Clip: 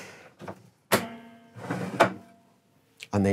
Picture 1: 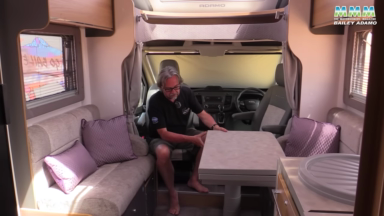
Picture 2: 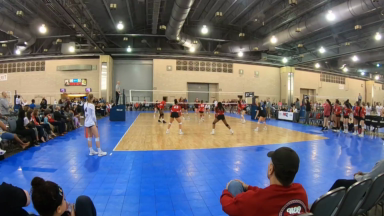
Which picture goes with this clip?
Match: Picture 1